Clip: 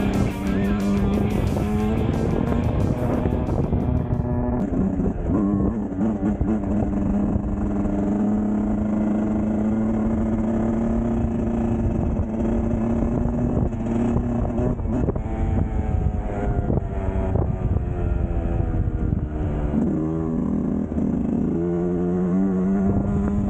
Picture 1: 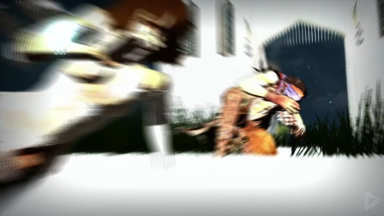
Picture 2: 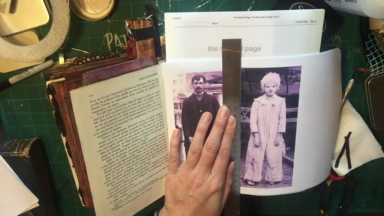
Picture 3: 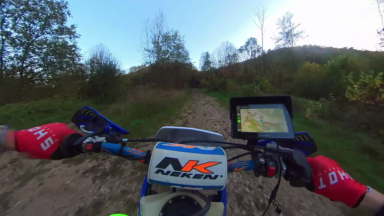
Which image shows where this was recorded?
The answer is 3